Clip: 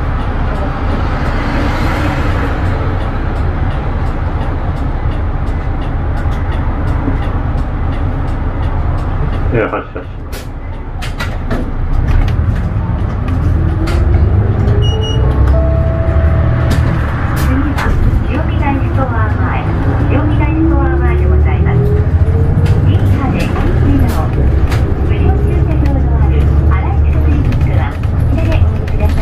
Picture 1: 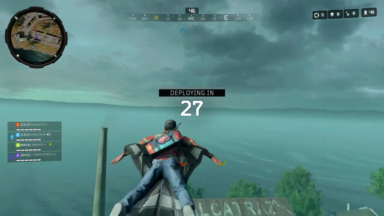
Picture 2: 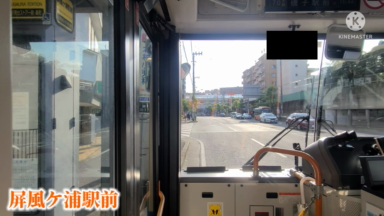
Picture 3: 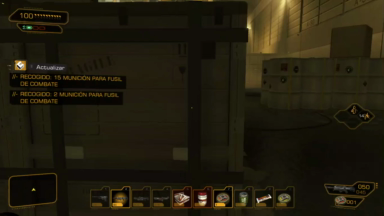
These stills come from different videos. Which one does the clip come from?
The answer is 2